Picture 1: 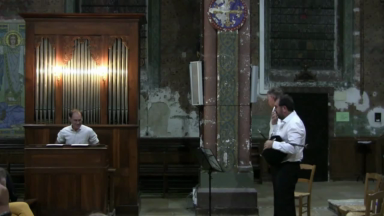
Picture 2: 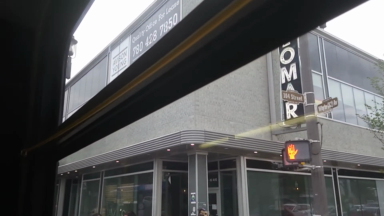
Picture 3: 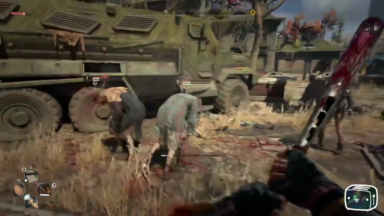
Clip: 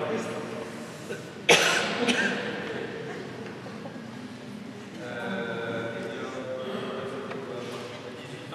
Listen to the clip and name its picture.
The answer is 1